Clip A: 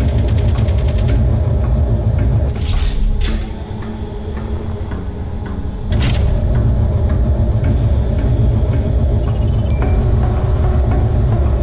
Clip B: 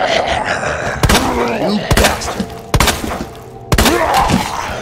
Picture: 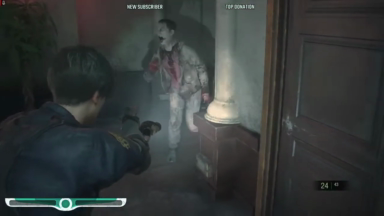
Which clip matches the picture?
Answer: B